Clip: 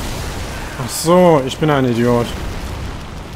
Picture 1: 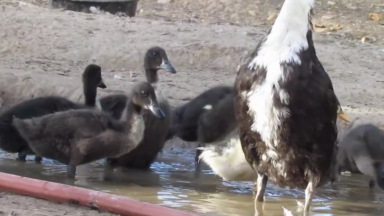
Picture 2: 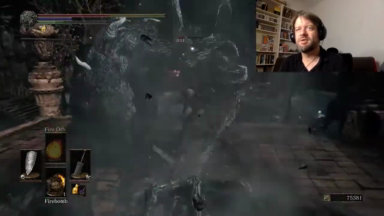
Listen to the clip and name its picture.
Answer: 2